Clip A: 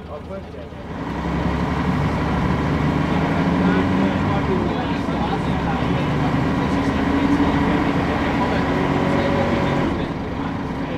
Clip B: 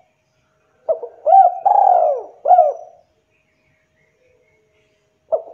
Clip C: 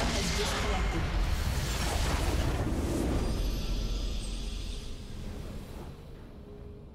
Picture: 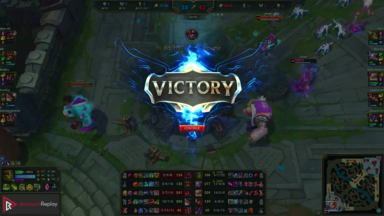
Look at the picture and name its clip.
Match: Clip C